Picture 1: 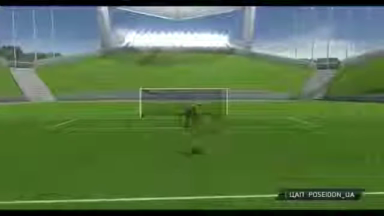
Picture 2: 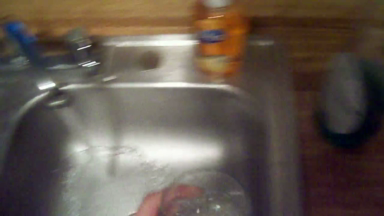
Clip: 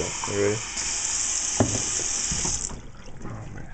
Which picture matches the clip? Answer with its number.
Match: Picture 2